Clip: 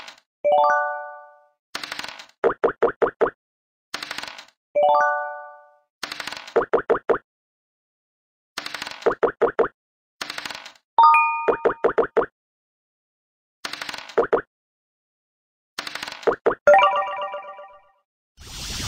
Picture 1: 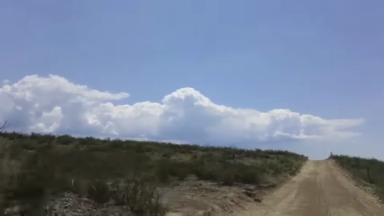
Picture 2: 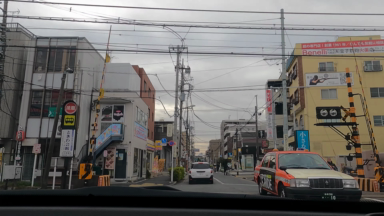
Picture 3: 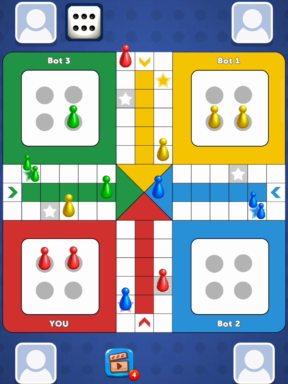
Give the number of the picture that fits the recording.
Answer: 3